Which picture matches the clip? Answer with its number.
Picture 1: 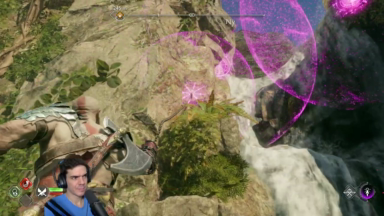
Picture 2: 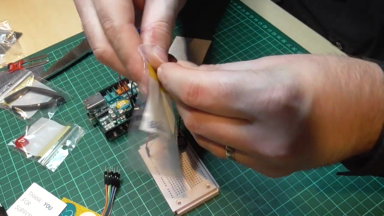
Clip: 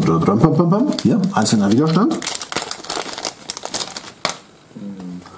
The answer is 2